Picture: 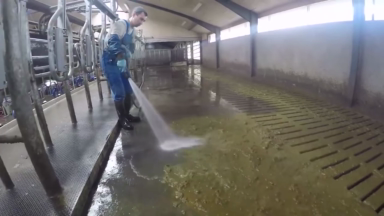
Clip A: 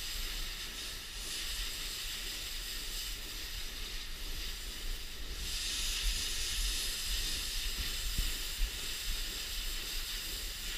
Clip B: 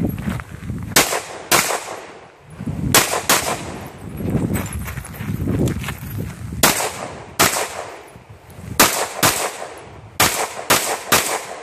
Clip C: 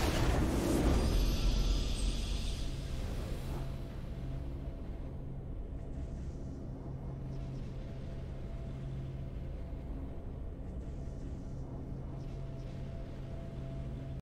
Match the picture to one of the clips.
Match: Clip A